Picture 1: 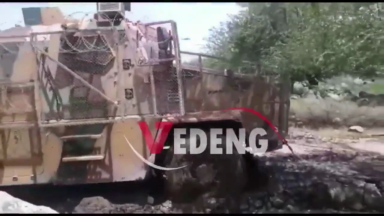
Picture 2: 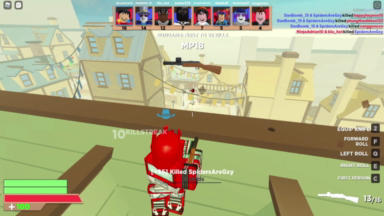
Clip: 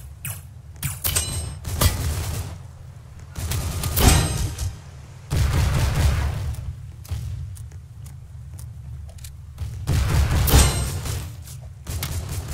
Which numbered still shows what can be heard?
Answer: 2